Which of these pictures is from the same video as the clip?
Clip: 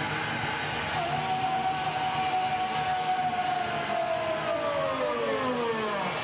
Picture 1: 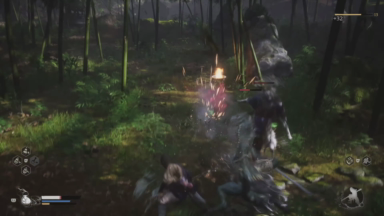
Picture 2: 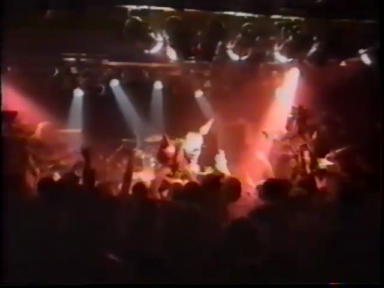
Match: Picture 2